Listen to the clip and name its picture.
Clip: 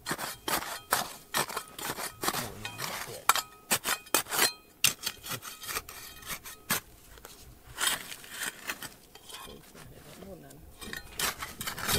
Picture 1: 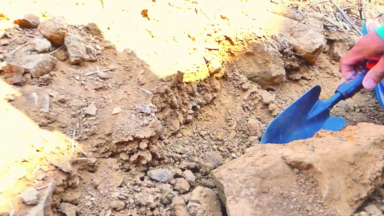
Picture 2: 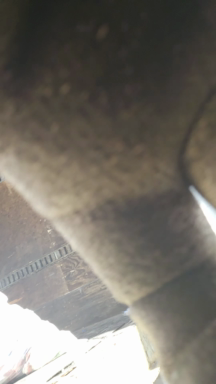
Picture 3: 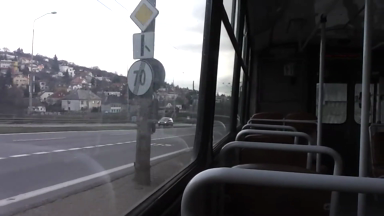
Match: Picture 1